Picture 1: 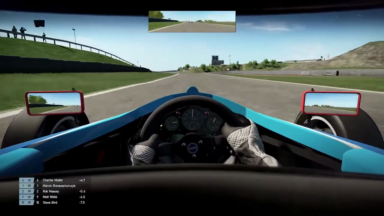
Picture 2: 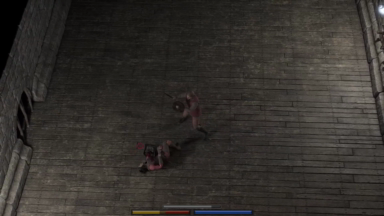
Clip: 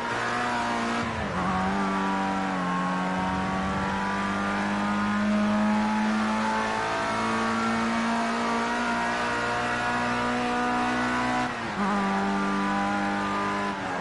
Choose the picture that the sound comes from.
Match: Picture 1